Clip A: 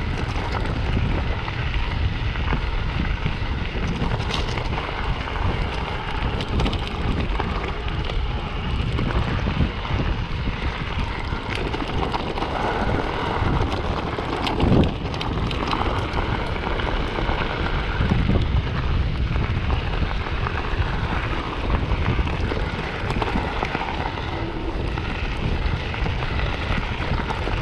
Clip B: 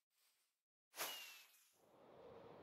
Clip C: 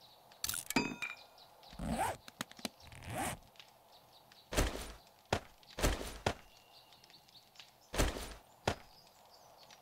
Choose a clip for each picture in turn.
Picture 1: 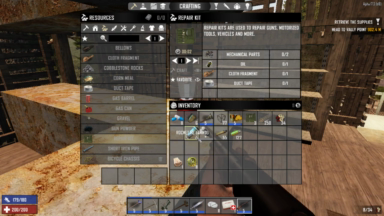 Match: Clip C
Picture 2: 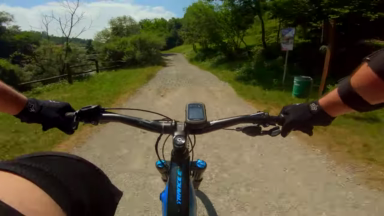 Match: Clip A